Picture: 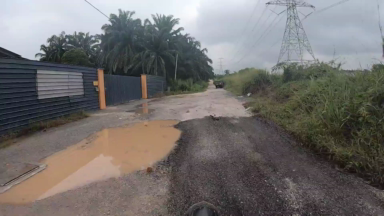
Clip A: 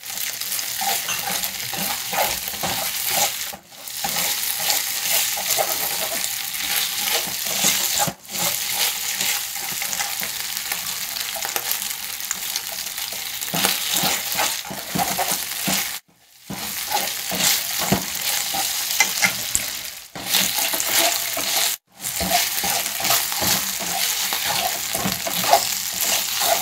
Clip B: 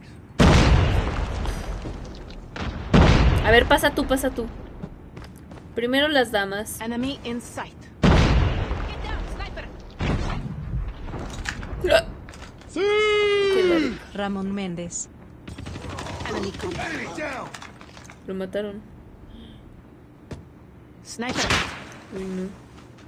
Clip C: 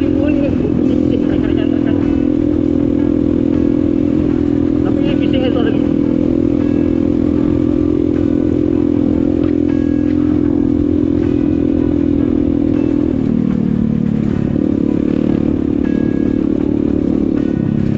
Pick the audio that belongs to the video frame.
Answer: C